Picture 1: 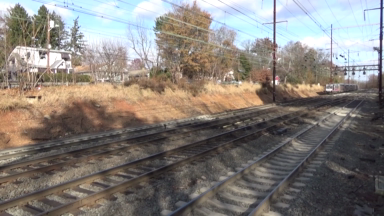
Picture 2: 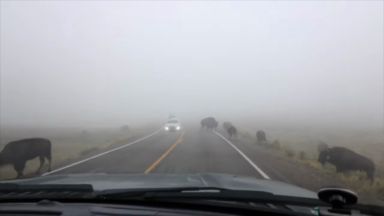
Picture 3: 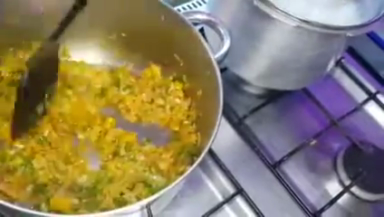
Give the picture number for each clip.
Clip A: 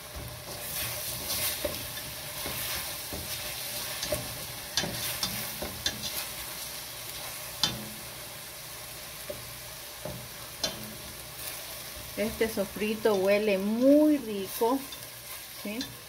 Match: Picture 3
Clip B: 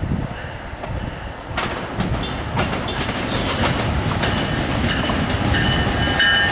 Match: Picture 1